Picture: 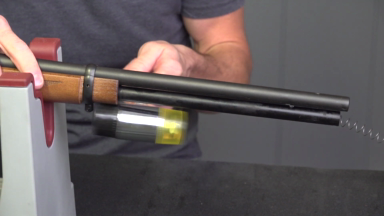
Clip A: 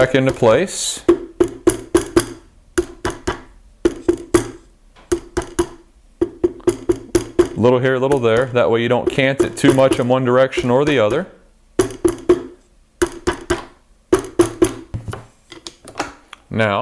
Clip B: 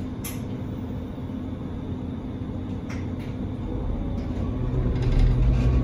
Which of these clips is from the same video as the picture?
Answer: A